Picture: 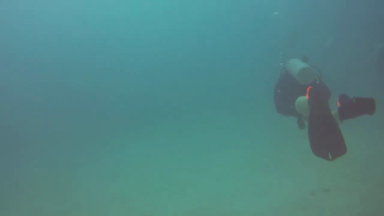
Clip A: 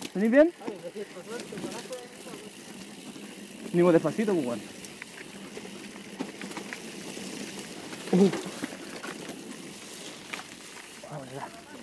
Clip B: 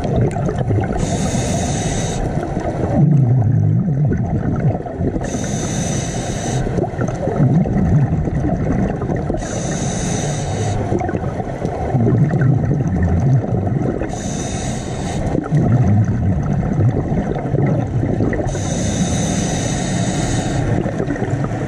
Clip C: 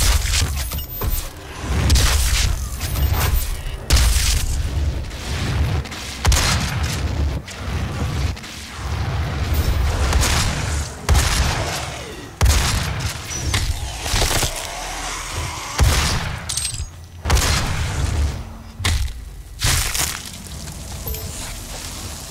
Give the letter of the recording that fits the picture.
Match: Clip B